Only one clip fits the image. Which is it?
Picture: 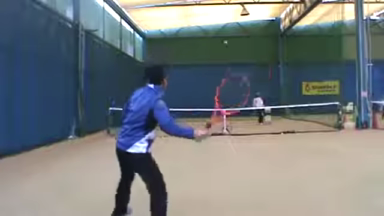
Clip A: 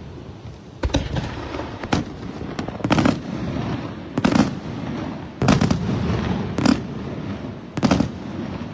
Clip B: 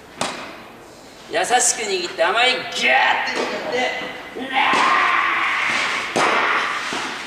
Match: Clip B